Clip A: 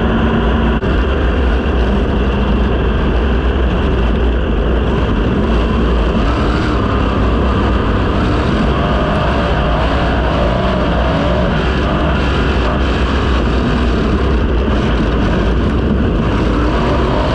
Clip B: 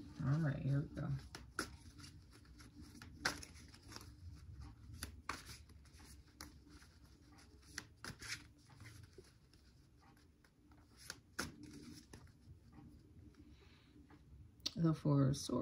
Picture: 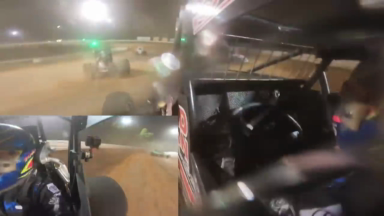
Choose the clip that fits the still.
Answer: A